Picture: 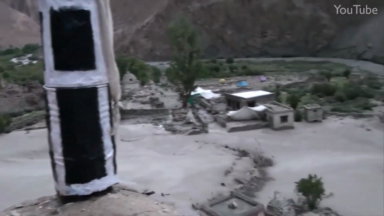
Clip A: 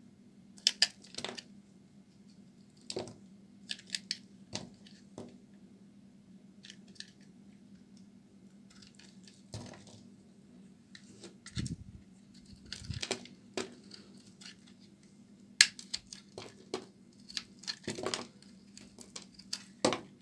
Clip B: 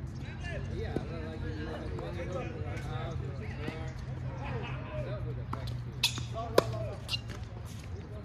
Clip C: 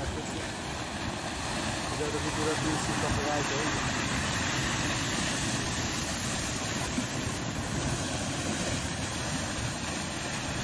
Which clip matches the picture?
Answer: C